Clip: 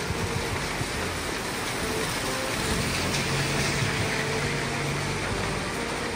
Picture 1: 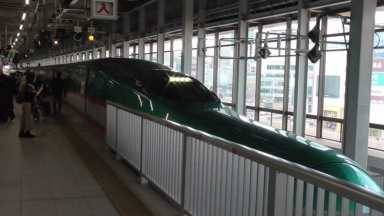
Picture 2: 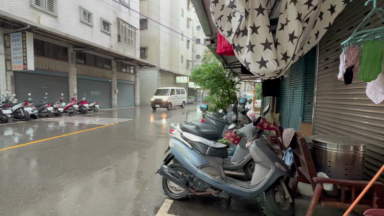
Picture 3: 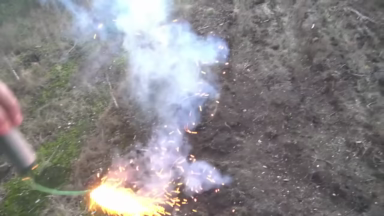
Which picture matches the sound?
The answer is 2